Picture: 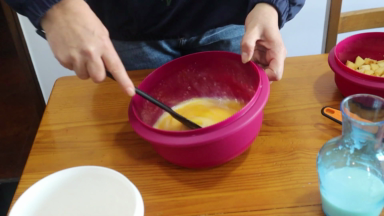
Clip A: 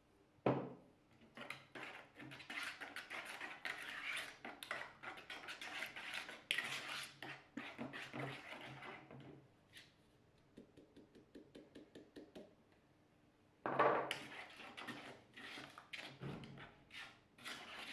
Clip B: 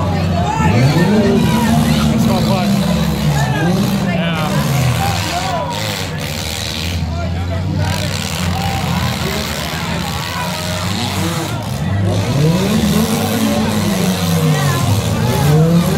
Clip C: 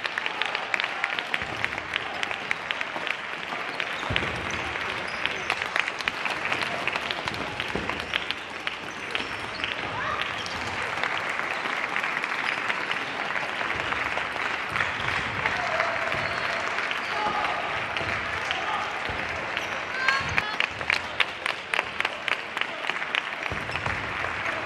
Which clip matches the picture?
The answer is A